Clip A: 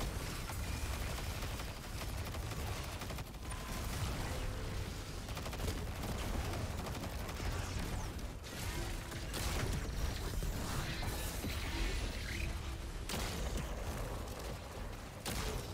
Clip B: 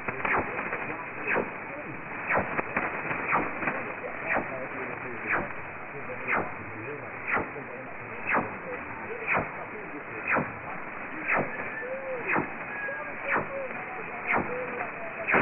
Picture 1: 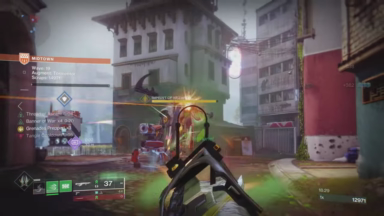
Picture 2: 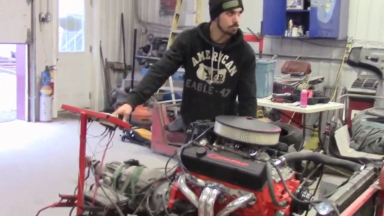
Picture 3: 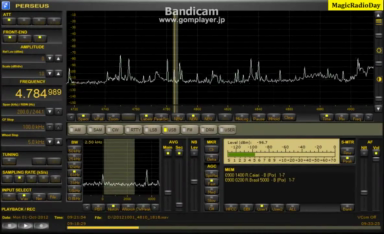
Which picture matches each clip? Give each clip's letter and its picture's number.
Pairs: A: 1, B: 3